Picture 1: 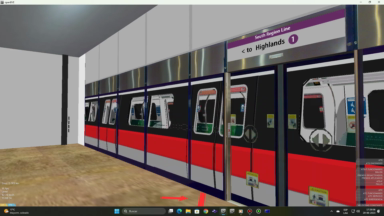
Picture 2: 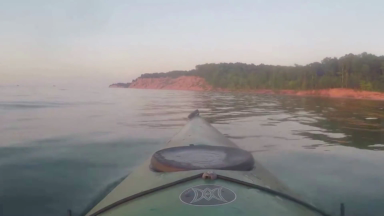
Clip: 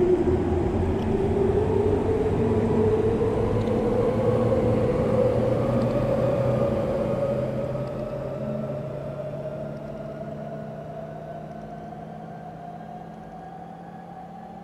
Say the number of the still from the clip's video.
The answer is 1